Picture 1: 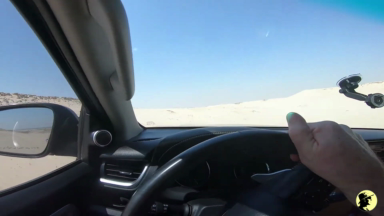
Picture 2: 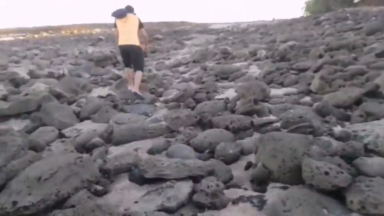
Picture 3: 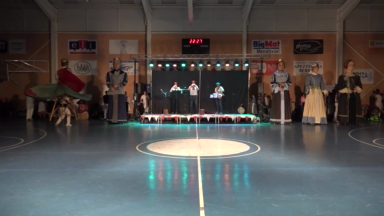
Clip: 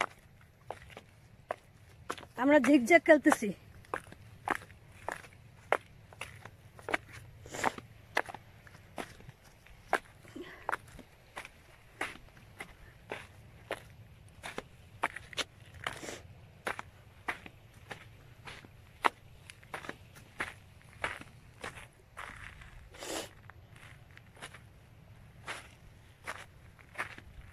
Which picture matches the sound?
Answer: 2